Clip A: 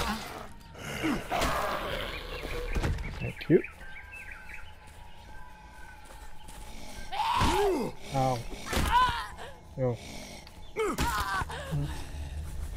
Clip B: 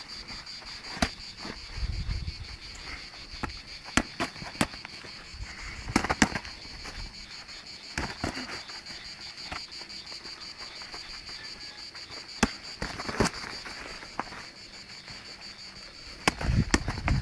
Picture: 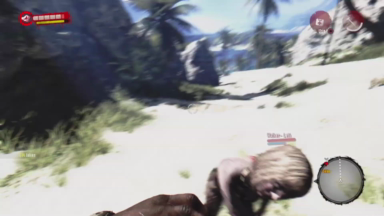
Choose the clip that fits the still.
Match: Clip A